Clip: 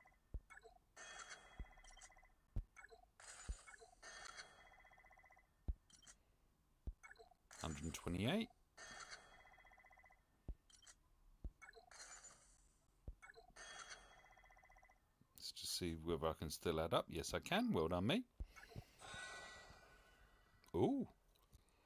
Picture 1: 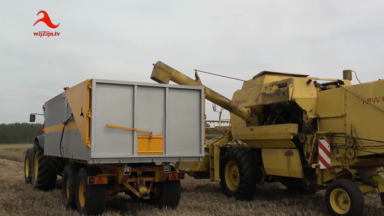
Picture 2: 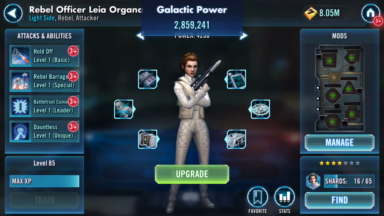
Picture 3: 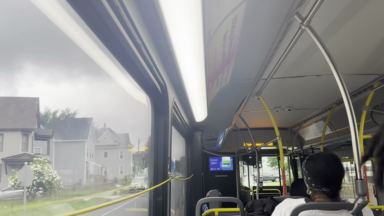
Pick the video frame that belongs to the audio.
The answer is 2